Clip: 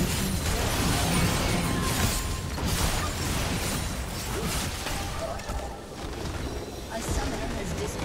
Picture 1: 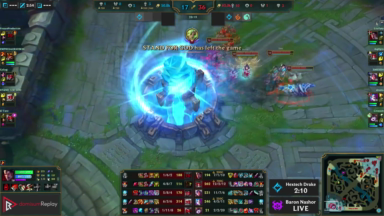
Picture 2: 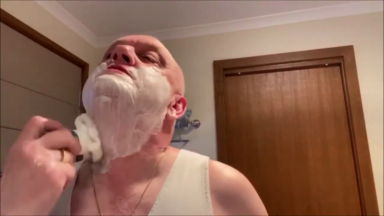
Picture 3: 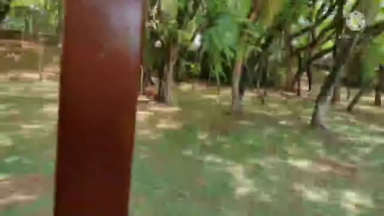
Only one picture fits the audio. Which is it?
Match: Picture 1